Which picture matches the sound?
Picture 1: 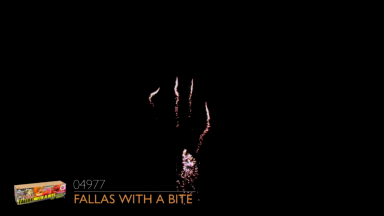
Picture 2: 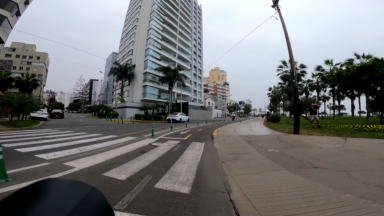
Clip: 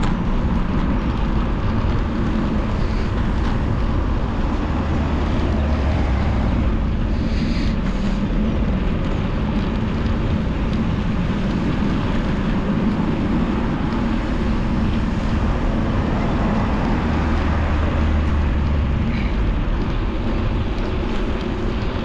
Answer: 2